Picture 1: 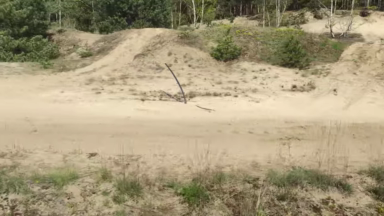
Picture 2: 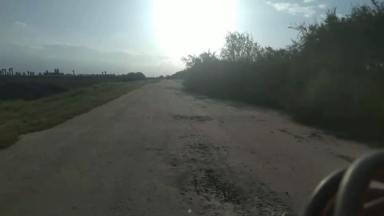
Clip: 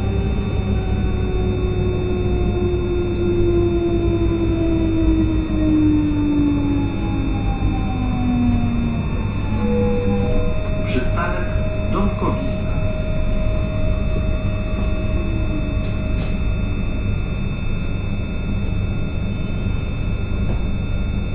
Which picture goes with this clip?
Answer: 1